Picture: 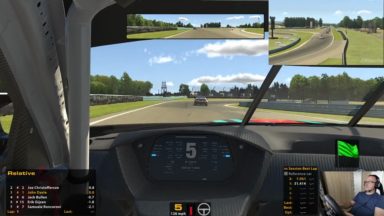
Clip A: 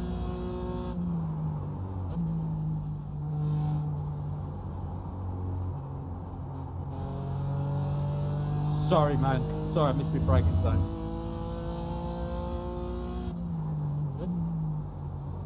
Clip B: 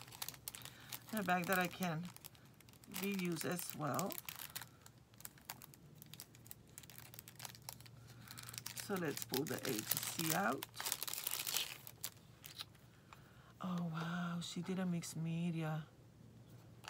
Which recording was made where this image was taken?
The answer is A